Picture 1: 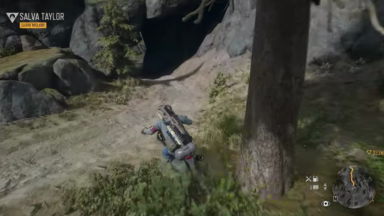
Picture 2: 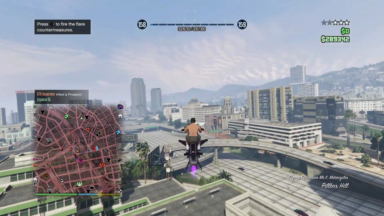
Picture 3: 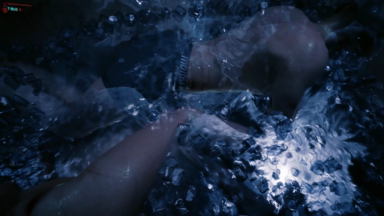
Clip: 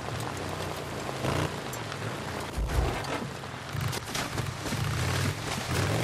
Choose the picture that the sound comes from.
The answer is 1